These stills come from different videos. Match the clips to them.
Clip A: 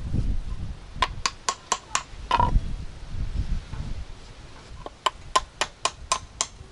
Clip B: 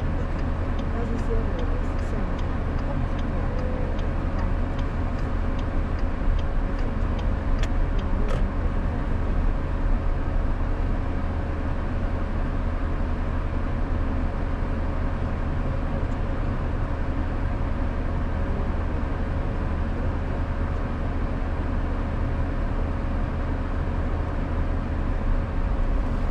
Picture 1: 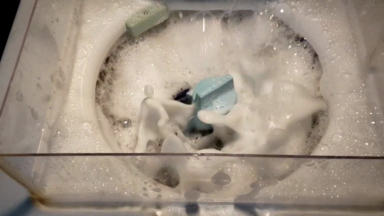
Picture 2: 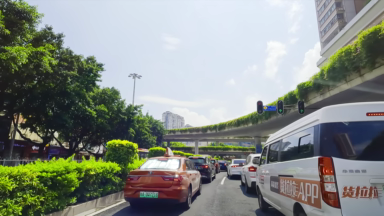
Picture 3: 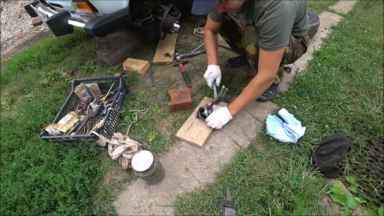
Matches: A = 3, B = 2